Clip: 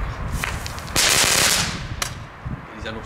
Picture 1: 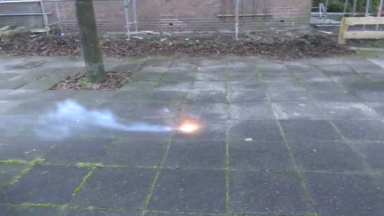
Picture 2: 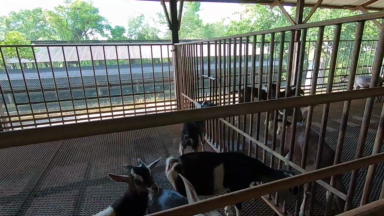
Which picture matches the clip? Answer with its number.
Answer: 1